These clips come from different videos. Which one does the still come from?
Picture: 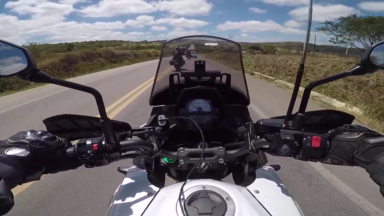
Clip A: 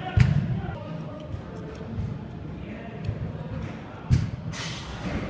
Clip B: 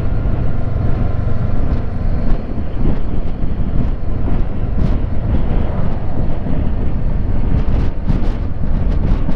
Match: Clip B